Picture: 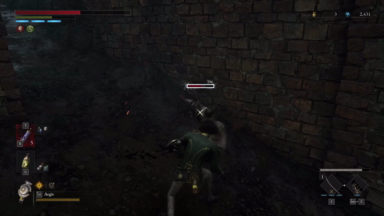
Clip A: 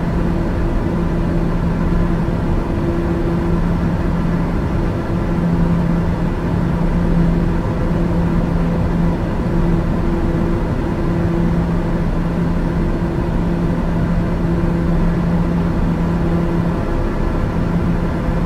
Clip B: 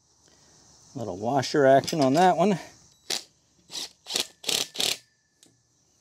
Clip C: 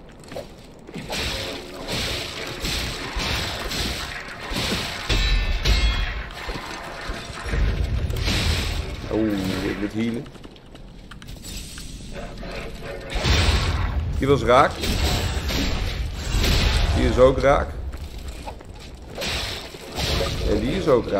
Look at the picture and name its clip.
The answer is C